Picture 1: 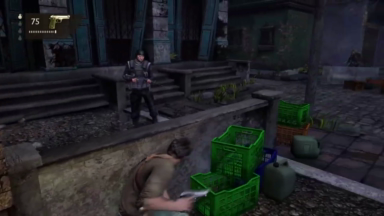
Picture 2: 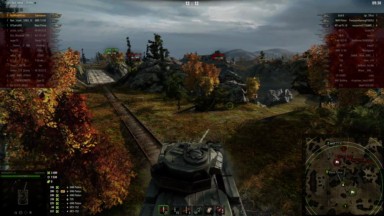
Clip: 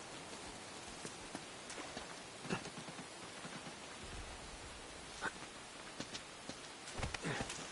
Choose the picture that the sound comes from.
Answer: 1